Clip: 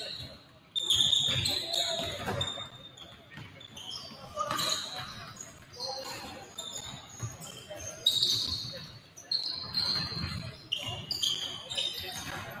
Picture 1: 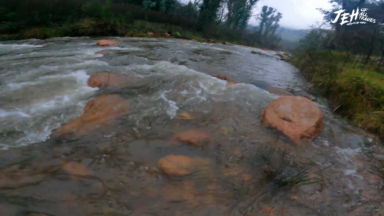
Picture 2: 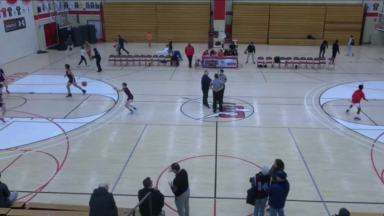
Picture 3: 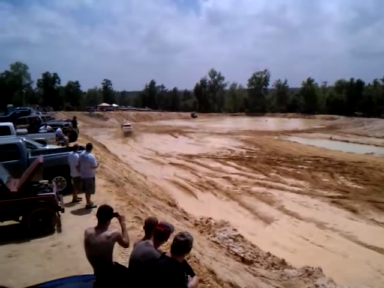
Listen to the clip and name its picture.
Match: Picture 2